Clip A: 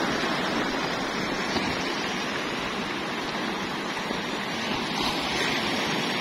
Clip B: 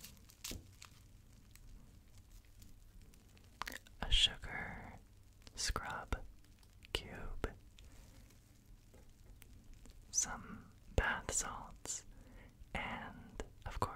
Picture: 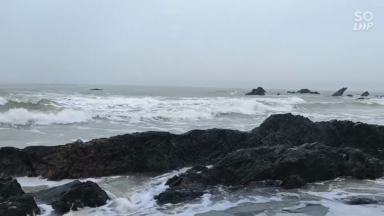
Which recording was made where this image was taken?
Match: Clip A